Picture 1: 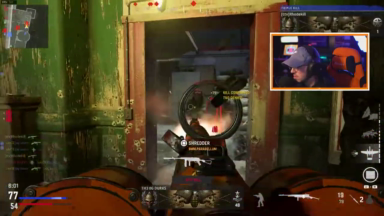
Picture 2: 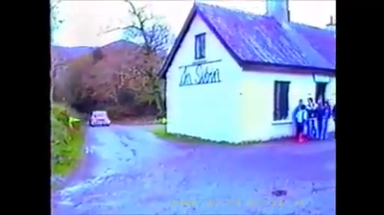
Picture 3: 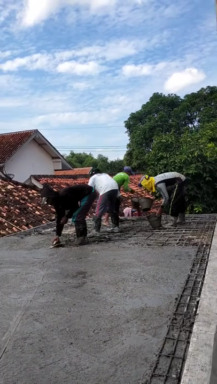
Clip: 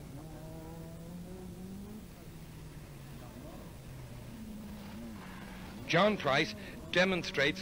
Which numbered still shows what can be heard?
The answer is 2